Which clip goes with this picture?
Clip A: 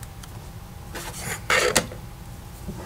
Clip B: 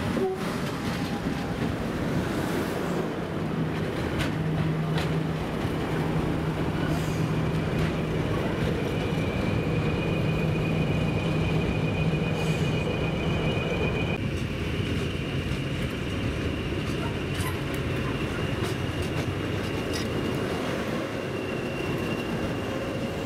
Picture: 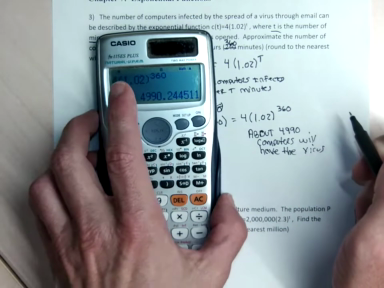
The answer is A